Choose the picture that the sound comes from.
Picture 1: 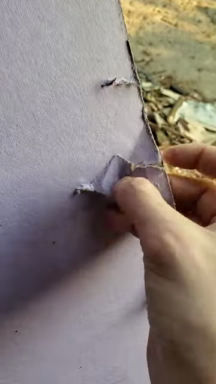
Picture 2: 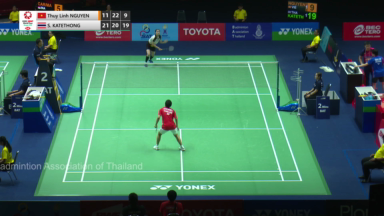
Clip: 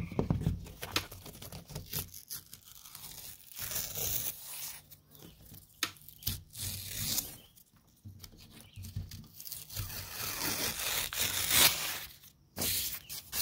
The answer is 1